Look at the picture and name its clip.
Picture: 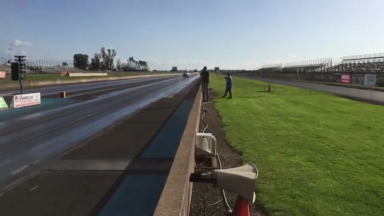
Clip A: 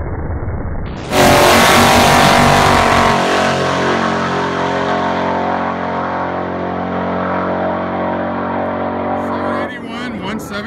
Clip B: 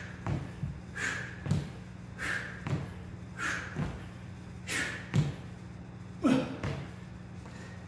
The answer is A